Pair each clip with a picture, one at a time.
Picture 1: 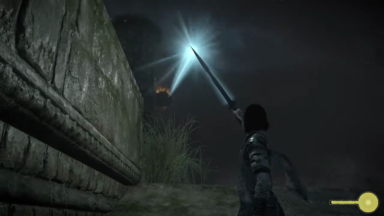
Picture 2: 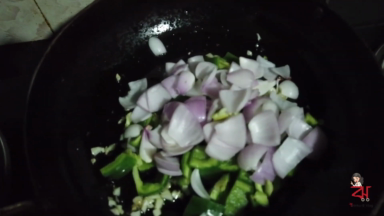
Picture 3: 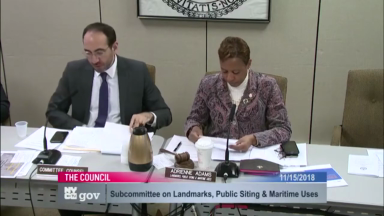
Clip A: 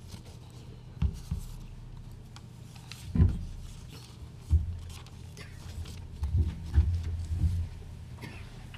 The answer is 3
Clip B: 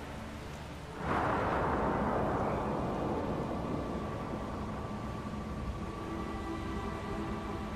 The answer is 1